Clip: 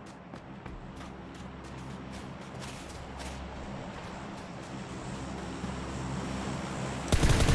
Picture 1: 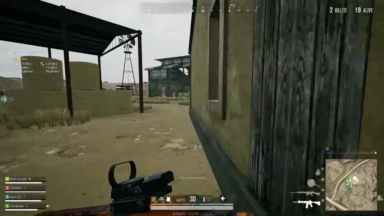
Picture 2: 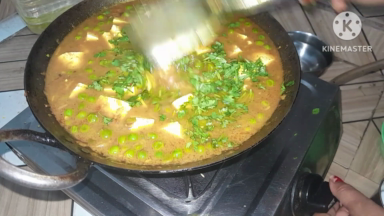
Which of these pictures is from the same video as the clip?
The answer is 1